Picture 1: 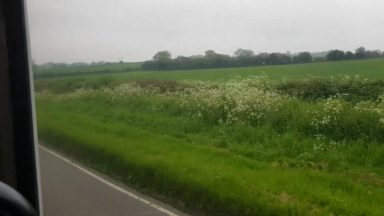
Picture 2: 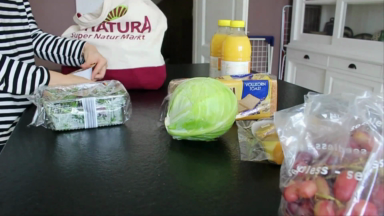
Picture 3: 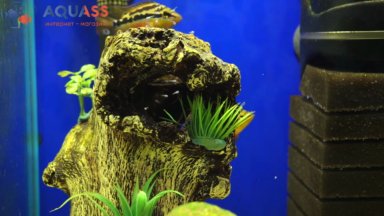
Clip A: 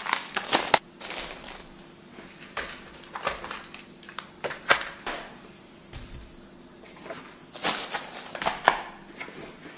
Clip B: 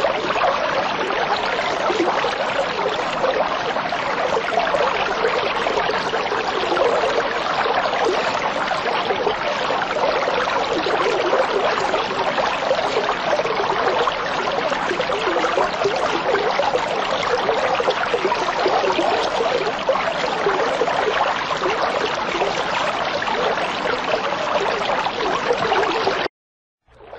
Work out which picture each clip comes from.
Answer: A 2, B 3